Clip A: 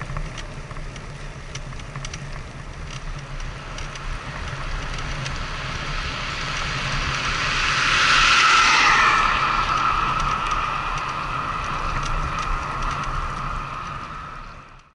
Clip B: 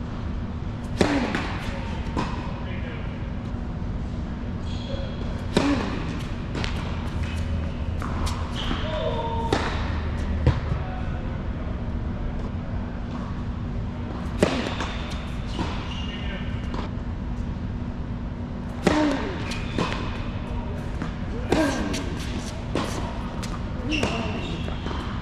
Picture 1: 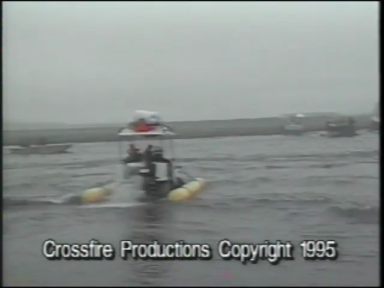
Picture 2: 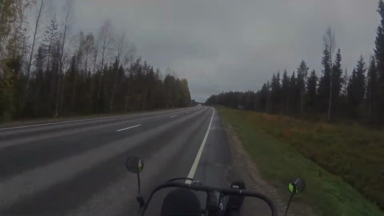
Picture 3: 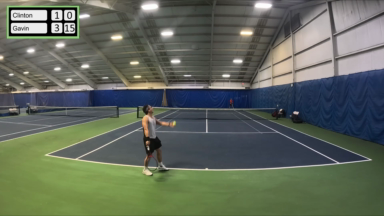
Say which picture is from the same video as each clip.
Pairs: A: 2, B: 3